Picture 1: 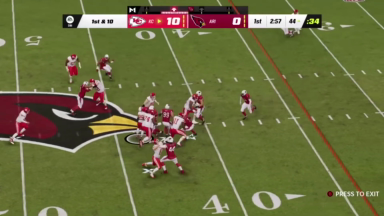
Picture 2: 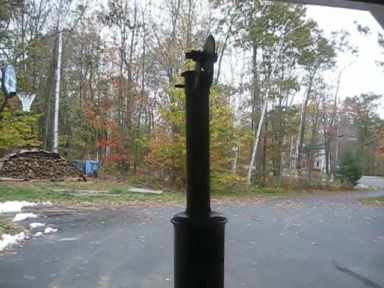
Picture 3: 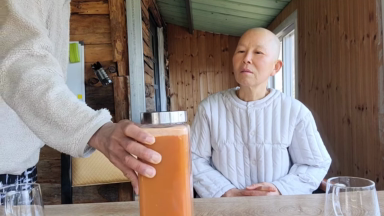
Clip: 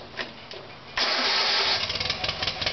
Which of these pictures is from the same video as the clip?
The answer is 2